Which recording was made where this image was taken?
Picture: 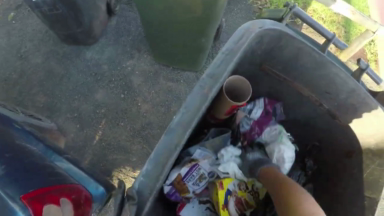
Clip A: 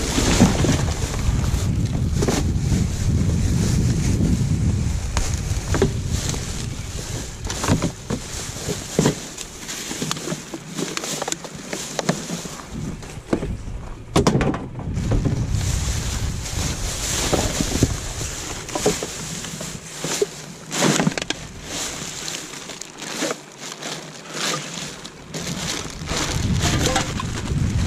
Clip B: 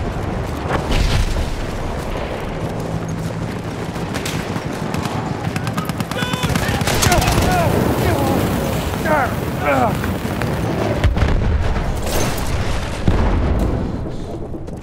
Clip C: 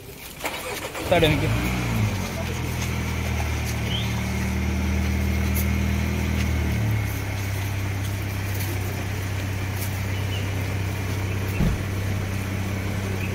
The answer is A